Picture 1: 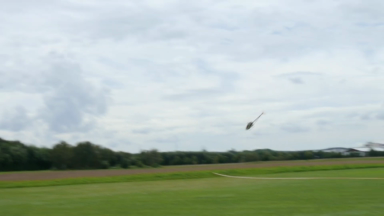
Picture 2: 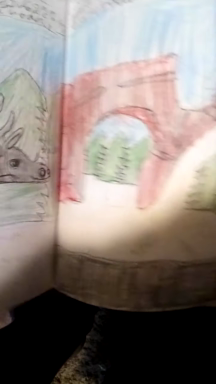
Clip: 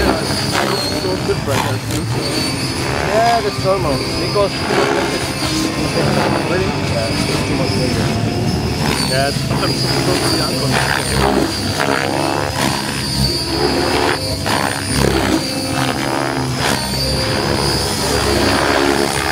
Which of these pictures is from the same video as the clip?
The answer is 1